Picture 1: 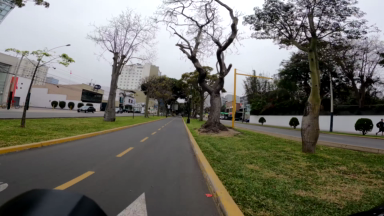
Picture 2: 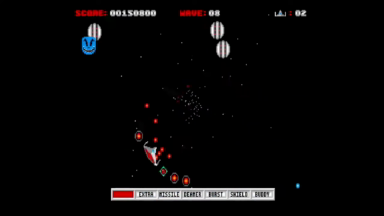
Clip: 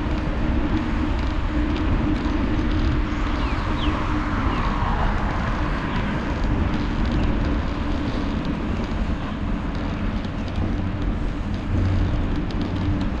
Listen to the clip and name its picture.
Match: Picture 1